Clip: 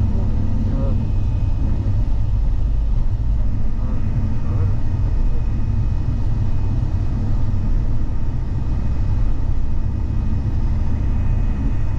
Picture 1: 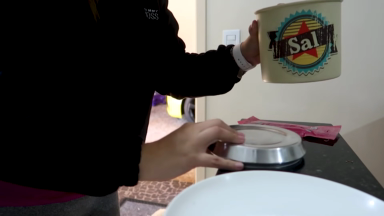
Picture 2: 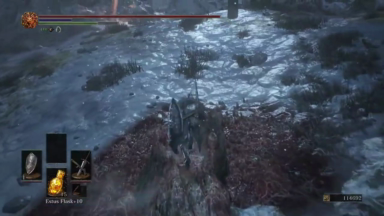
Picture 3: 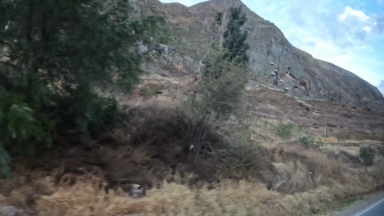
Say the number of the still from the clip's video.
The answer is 3